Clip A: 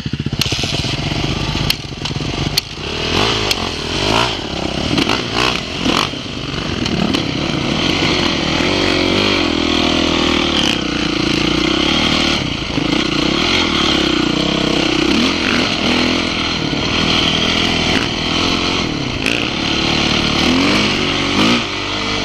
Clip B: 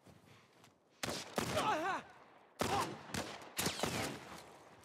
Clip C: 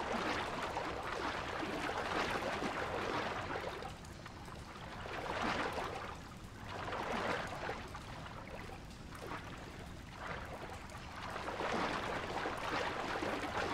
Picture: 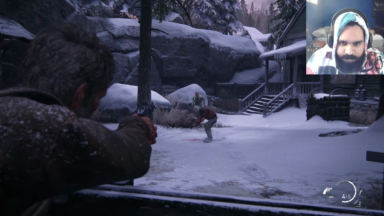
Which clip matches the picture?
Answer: B